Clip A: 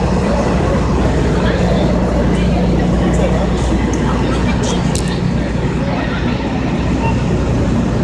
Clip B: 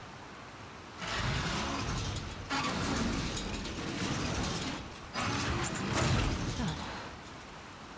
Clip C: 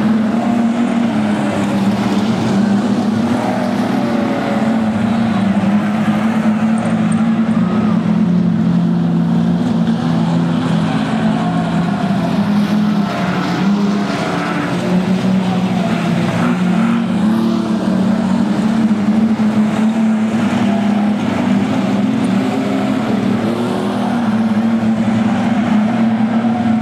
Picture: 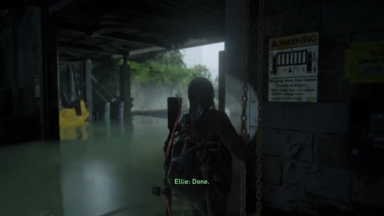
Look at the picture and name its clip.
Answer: B